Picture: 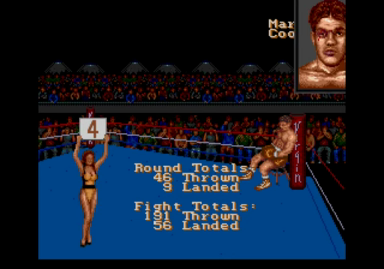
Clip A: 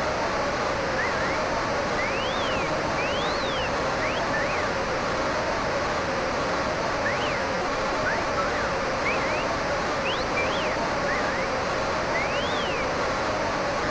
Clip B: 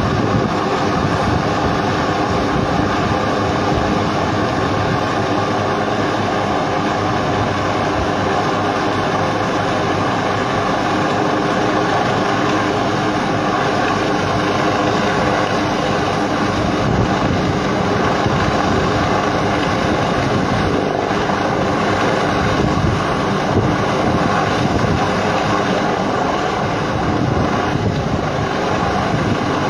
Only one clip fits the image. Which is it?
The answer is A